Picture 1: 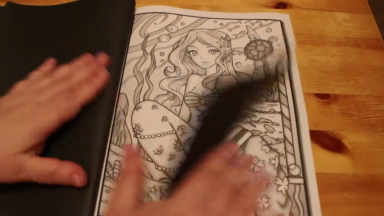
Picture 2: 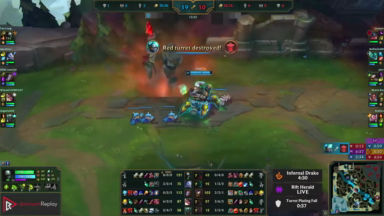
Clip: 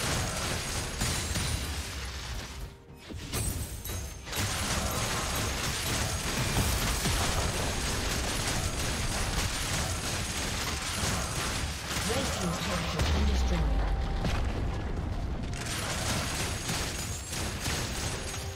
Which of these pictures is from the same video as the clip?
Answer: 2